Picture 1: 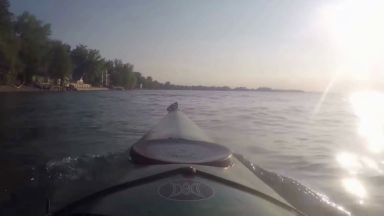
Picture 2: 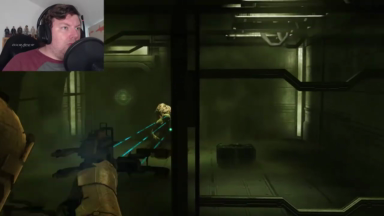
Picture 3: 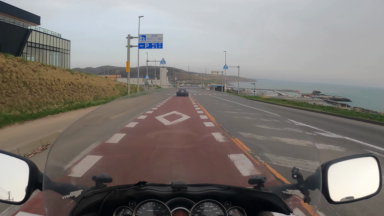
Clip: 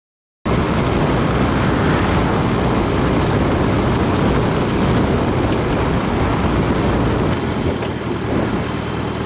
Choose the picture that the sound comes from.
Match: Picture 3